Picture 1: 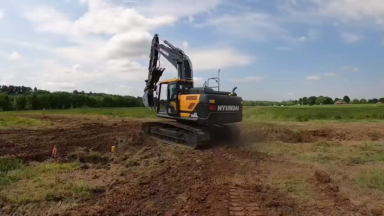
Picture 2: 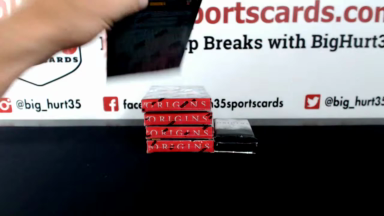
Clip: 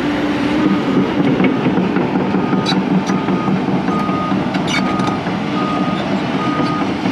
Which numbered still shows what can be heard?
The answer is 1